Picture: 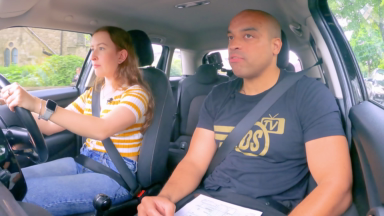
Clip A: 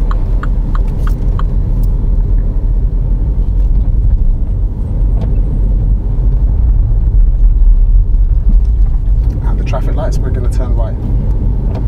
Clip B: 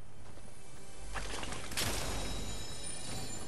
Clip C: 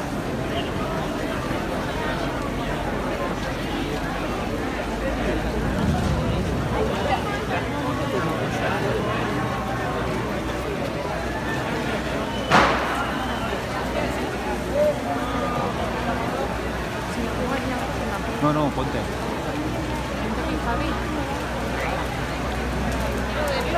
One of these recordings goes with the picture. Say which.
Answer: A